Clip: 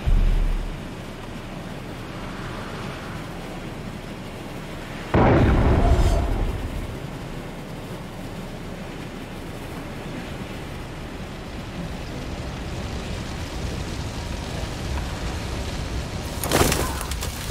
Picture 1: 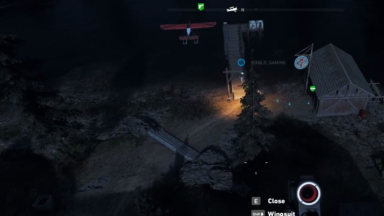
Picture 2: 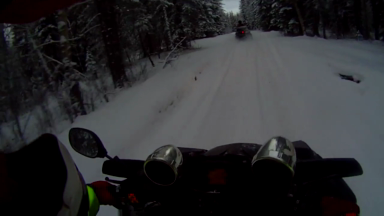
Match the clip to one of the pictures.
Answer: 1